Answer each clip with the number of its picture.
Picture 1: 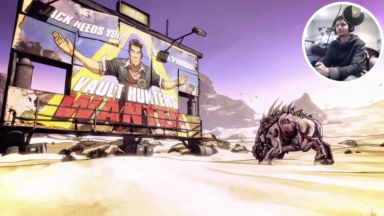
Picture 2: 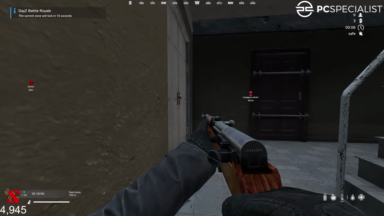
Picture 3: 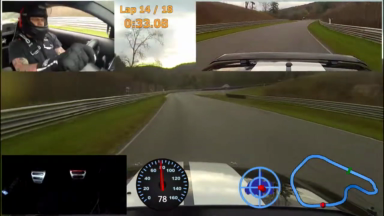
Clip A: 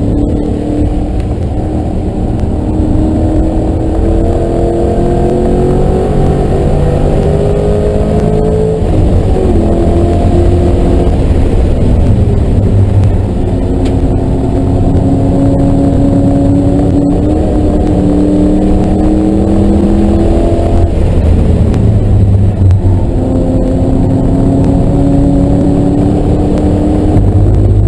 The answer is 3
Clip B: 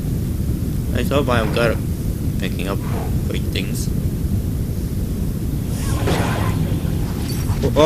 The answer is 1